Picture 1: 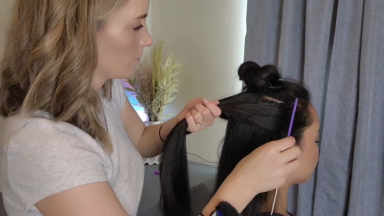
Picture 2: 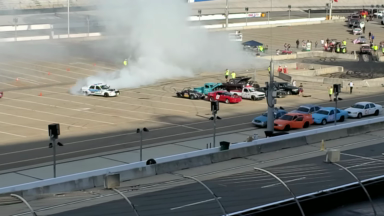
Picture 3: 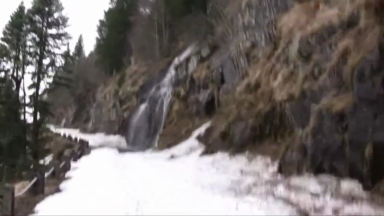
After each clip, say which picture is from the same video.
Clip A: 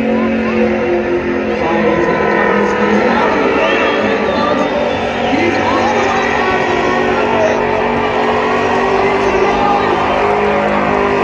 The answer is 2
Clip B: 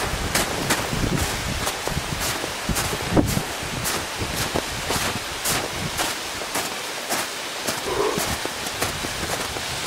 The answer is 3